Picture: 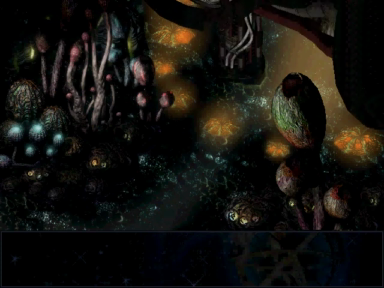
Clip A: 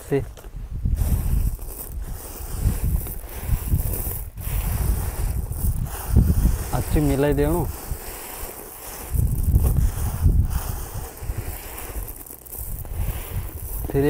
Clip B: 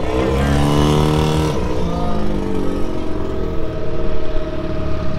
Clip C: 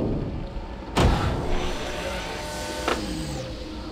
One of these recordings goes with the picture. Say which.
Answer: C